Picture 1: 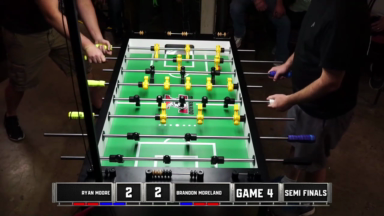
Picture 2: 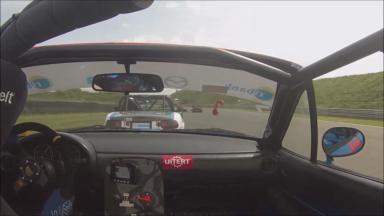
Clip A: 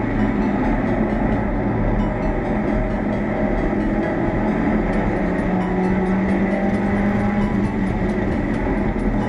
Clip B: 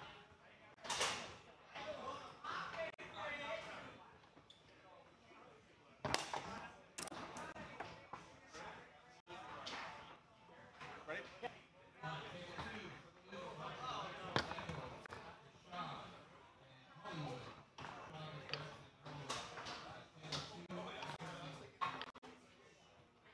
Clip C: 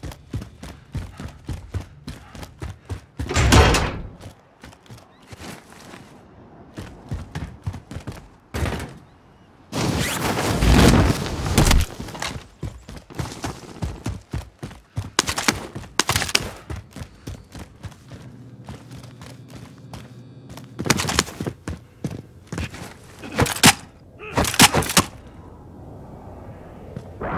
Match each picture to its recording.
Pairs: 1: B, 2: A